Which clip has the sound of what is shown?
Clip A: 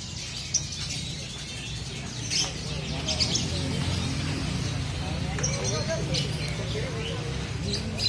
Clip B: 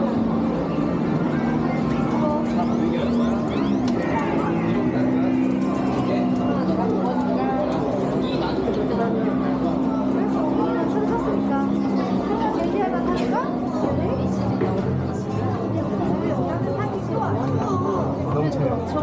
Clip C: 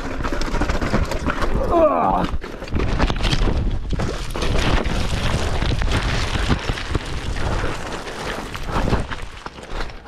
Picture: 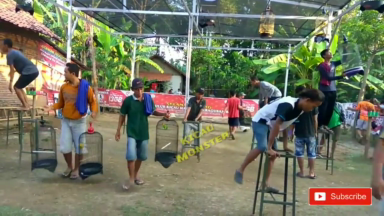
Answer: A